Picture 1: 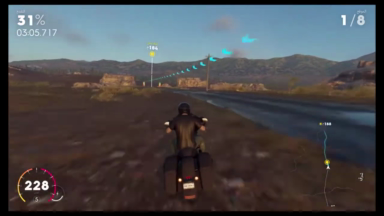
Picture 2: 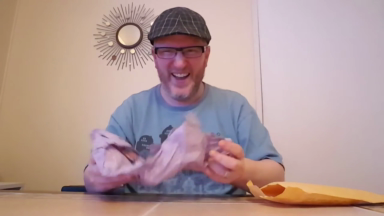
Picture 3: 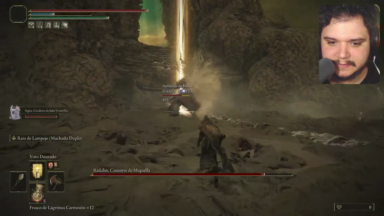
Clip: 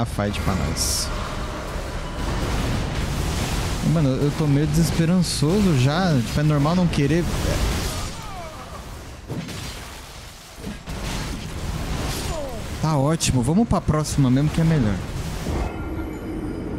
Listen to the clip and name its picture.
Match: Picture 3